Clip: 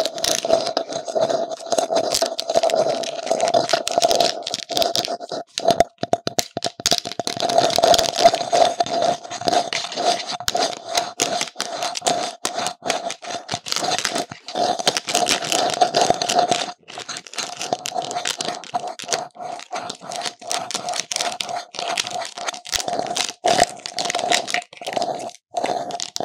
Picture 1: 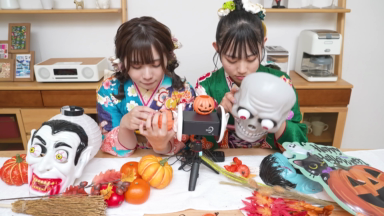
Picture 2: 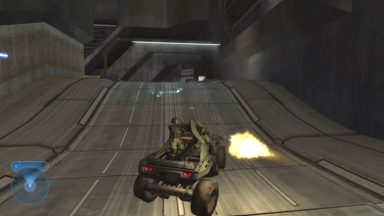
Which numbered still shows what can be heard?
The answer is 1